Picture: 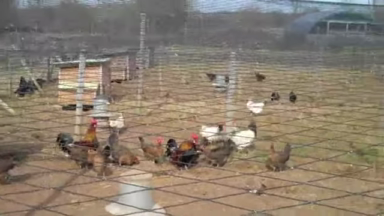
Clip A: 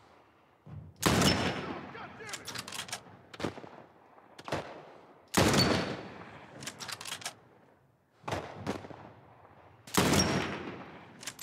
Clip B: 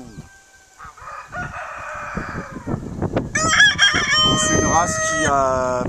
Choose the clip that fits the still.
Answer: B